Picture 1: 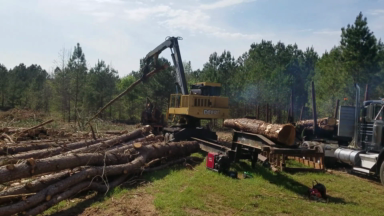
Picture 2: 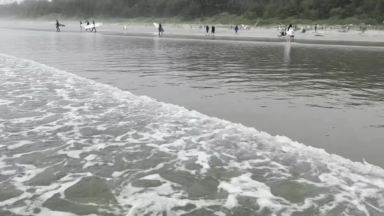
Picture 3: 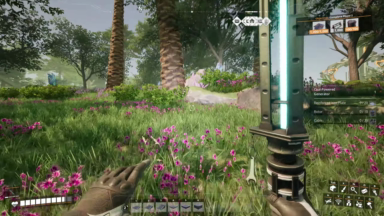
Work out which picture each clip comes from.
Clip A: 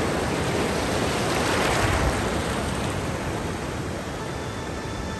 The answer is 2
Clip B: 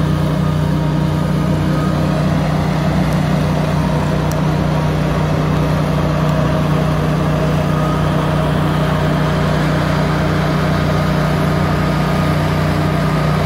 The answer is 1